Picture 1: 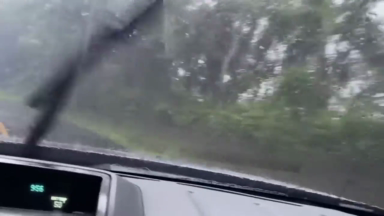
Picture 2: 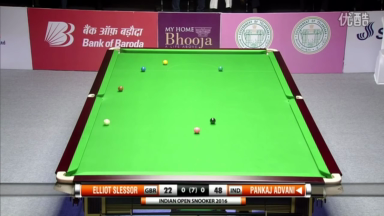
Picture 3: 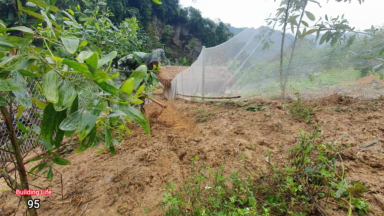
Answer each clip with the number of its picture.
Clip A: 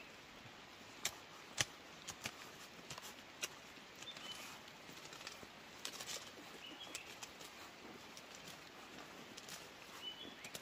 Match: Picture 3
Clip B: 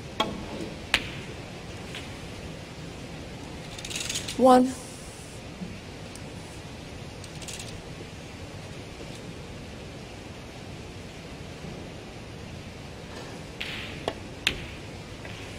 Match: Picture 2